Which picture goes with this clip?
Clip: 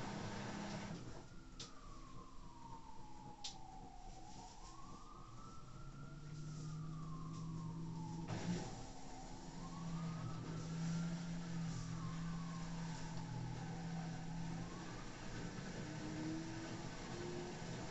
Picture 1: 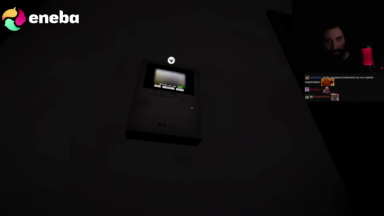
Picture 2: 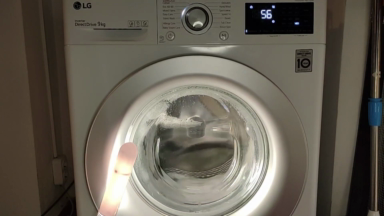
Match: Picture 2